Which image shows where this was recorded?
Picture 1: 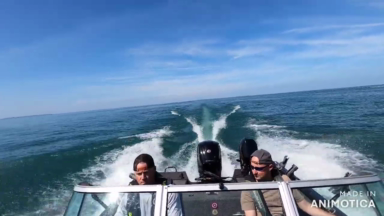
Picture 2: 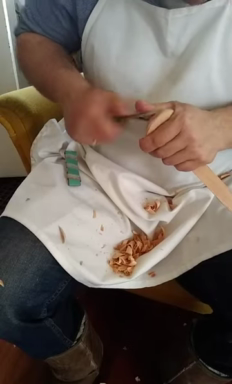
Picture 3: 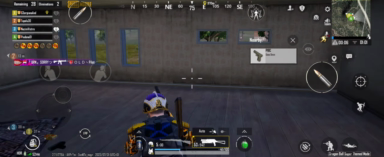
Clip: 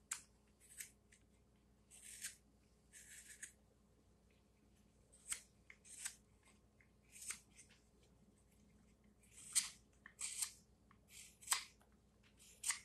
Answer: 2